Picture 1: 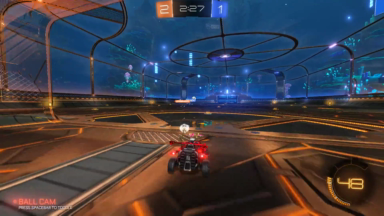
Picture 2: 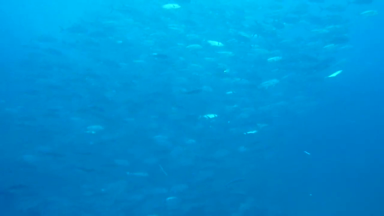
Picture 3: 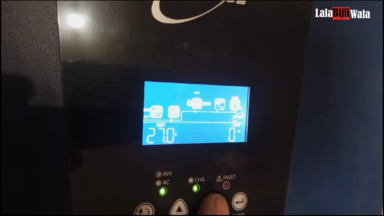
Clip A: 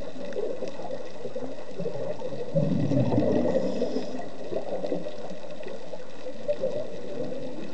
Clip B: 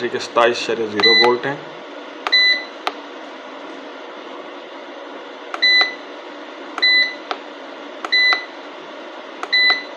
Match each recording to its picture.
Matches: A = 2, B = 3